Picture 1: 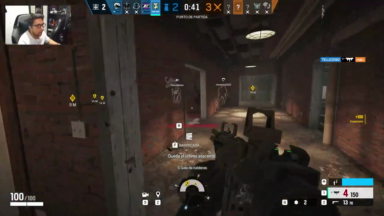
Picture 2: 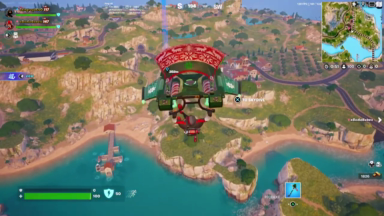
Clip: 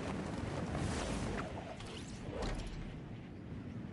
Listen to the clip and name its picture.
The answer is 2